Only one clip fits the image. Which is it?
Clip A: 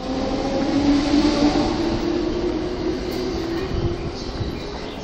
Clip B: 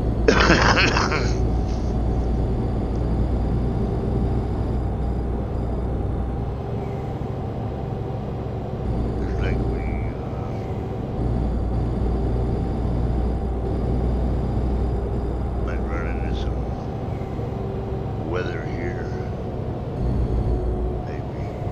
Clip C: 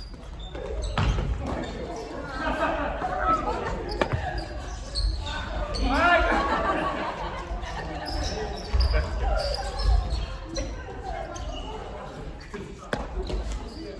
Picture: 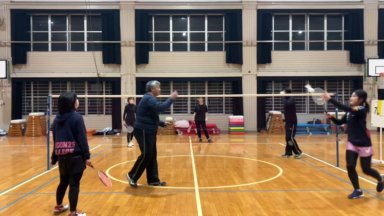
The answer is C